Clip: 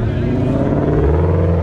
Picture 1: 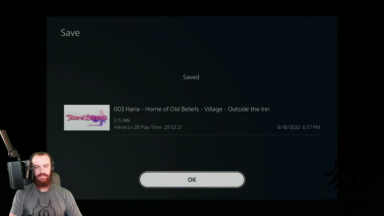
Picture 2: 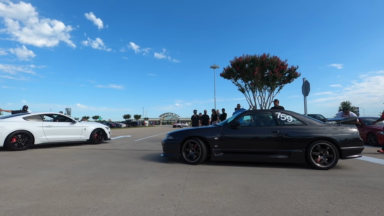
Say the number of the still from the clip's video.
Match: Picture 2